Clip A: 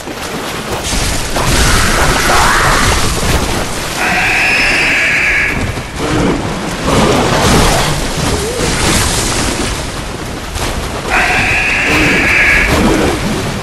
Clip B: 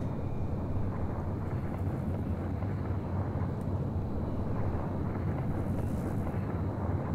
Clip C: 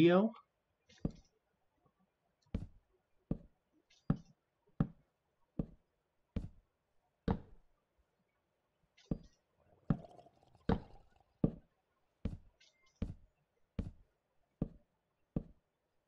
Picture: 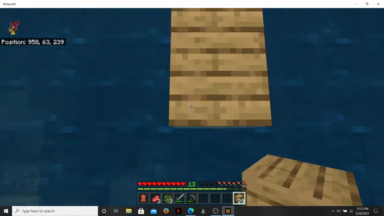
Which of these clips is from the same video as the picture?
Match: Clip C